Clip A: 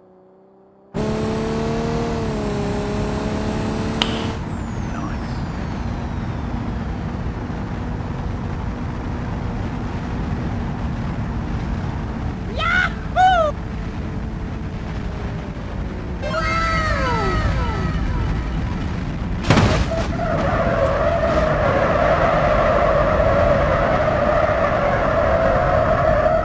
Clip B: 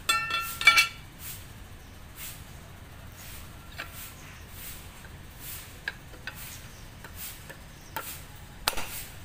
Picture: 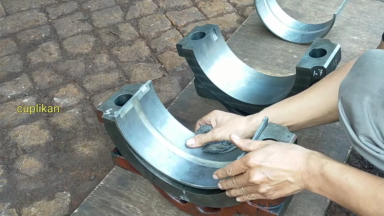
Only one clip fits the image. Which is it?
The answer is B